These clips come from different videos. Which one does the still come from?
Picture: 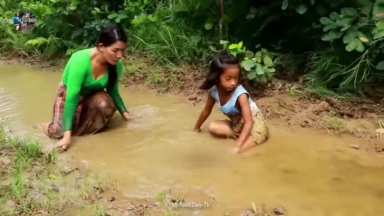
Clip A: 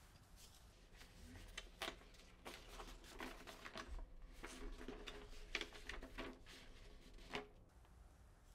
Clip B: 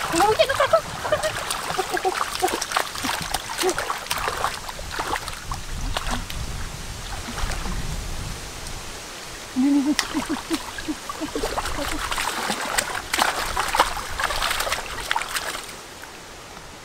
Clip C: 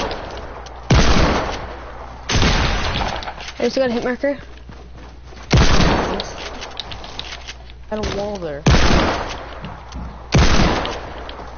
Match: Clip B